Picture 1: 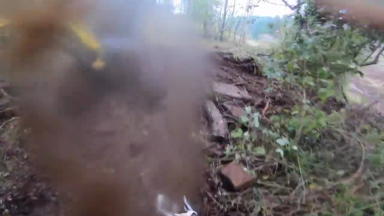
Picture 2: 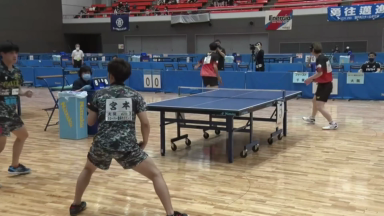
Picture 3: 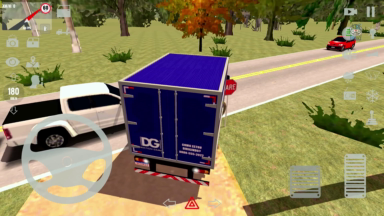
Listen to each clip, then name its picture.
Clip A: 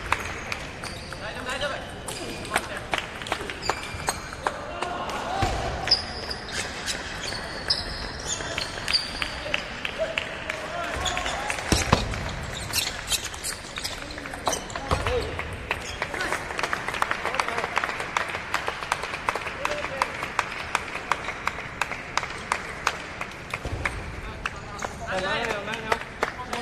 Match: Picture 2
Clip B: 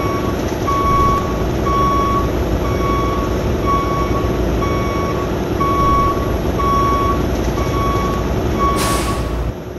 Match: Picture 3